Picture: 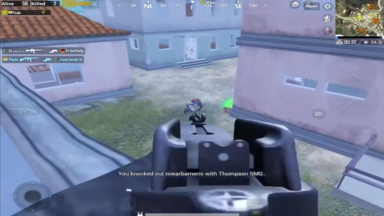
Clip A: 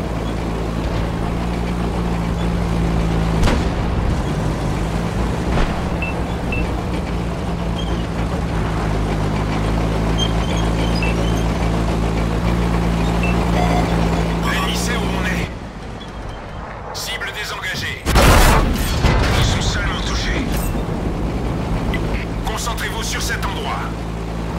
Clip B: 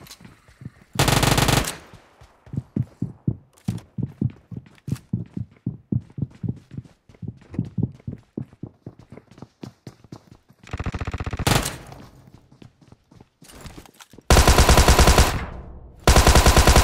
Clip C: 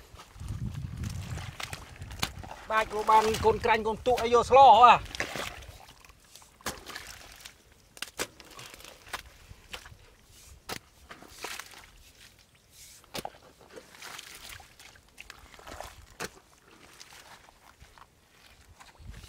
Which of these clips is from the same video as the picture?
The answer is B